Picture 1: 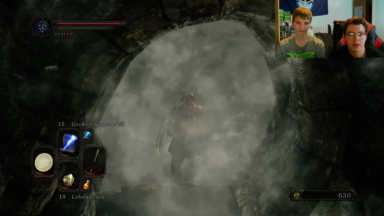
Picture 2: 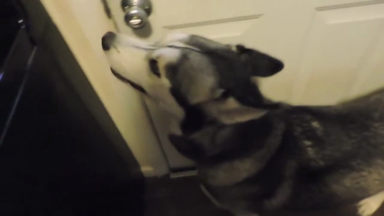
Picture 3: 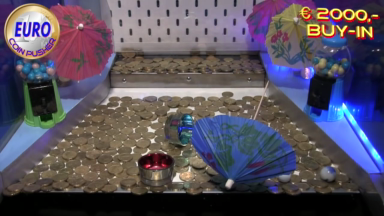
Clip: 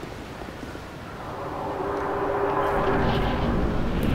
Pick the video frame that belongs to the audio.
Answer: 1